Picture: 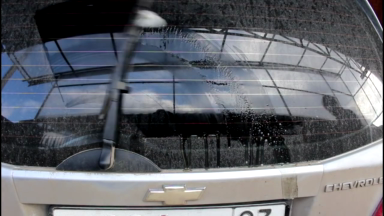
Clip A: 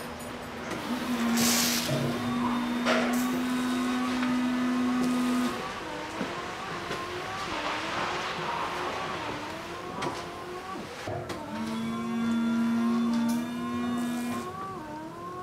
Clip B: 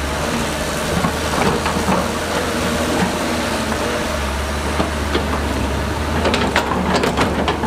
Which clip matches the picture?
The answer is A